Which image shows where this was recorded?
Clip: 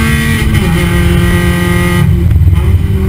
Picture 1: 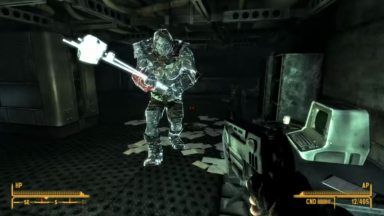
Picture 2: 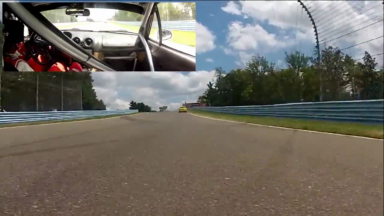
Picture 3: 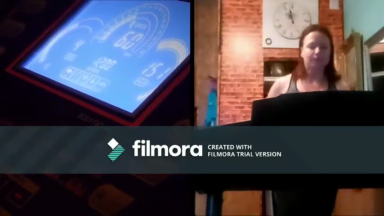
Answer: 2